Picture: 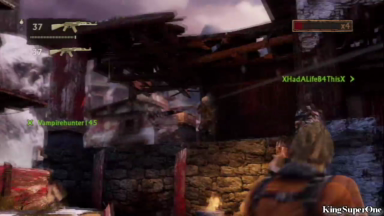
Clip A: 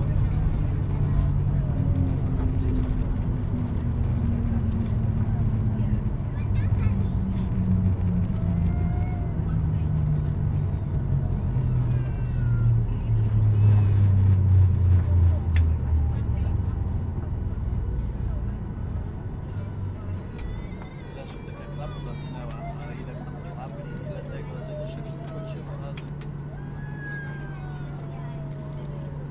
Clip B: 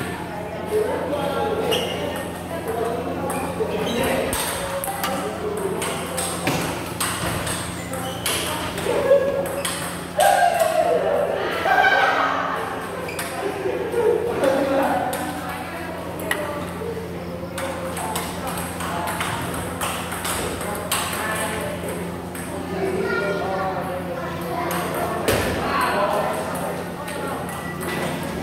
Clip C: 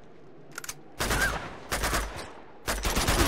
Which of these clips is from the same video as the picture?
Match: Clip C